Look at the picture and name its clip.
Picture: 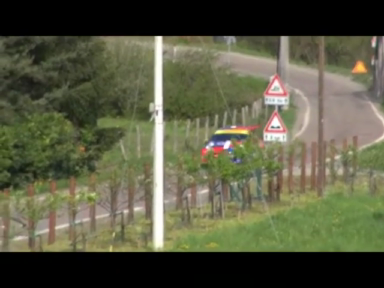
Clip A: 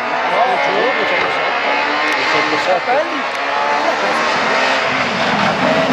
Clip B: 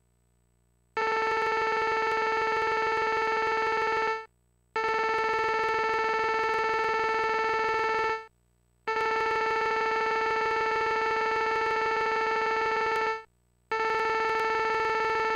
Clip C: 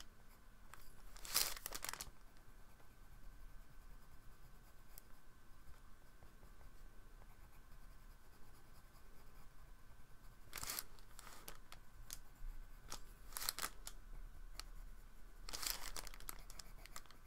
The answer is A